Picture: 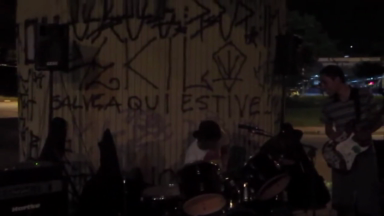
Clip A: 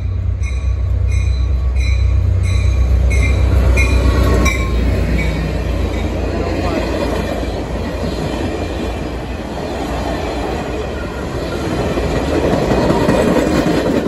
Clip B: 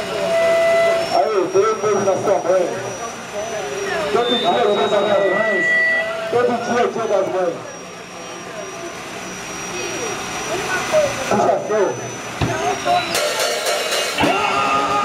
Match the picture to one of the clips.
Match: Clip B